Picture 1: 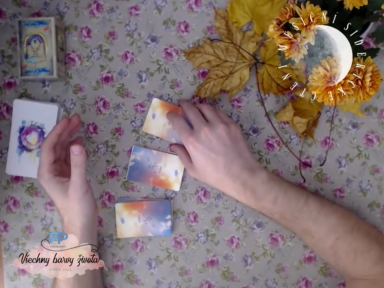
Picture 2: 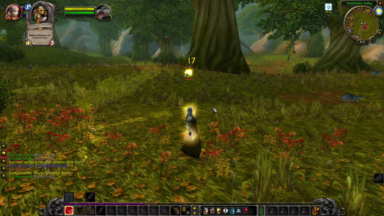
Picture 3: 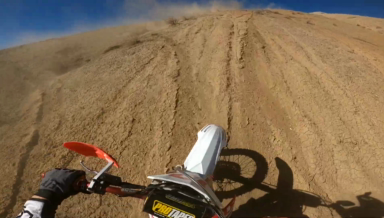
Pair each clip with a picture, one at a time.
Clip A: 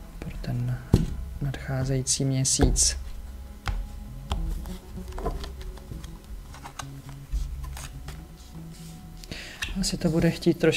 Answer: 1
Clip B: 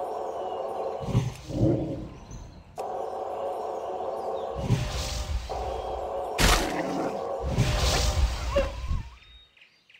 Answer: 2